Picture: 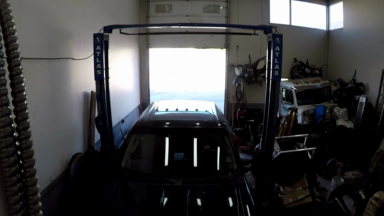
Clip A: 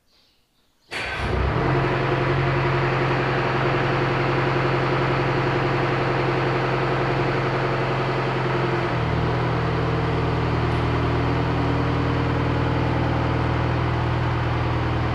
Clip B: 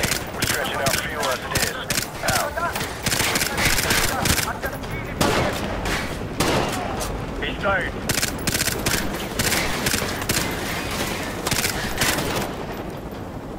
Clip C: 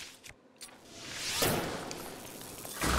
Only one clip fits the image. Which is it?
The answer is A